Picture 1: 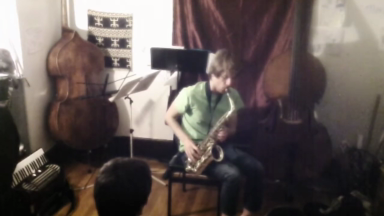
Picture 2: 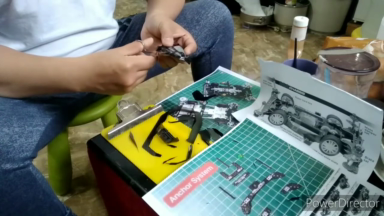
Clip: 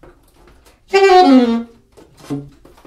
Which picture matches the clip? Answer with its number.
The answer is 1